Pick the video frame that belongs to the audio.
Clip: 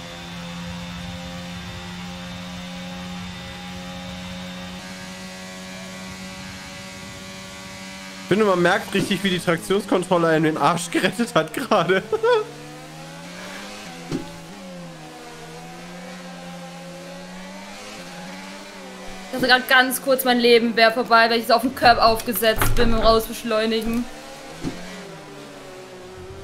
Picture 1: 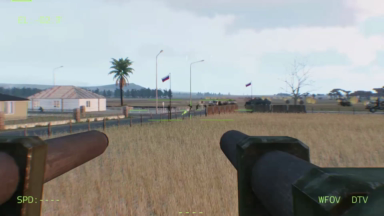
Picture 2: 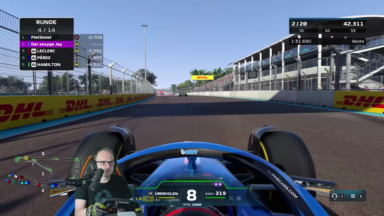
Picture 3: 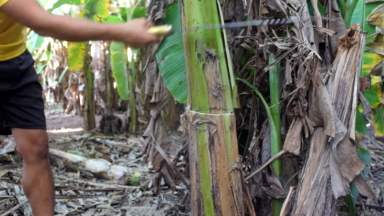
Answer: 2